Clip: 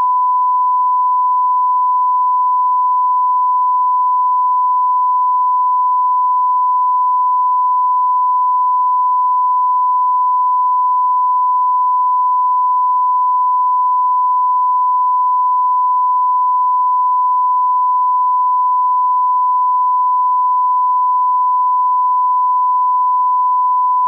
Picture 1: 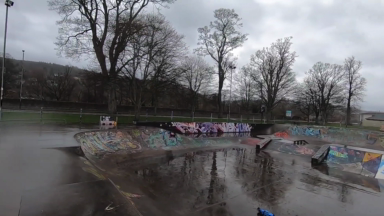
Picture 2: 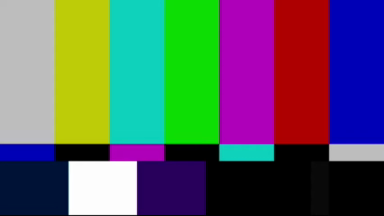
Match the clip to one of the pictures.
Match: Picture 2